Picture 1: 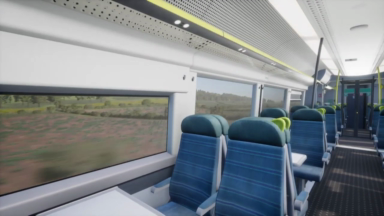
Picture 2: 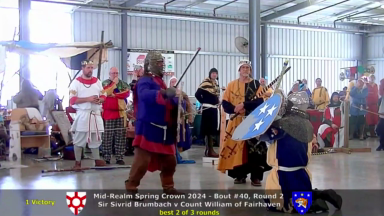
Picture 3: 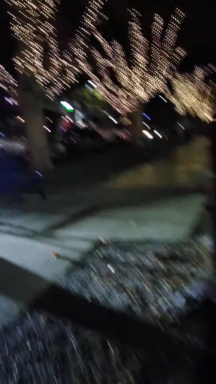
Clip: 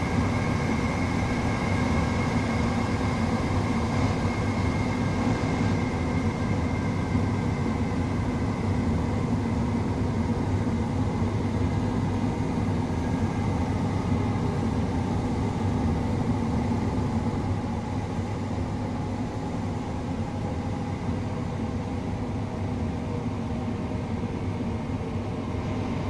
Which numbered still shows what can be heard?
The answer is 1